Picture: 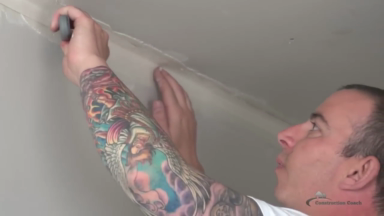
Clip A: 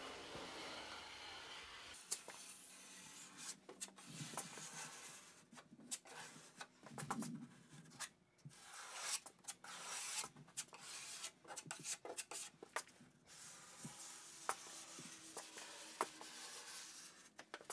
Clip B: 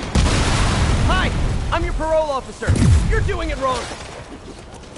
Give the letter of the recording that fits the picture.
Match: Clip A